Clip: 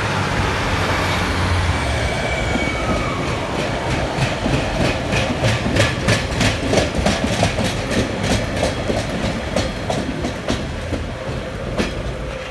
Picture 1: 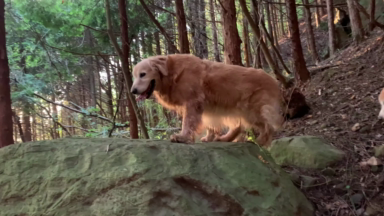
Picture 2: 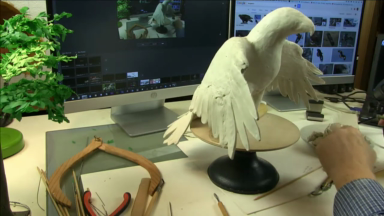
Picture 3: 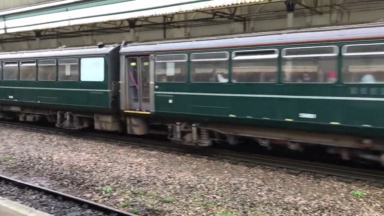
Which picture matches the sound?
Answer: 3